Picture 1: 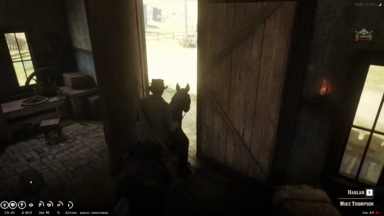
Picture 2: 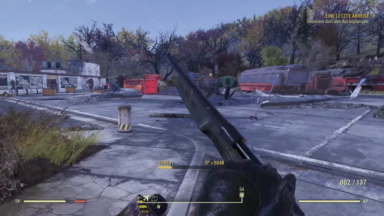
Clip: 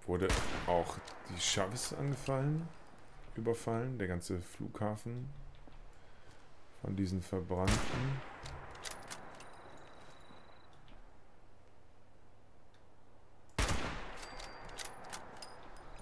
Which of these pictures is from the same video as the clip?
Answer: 2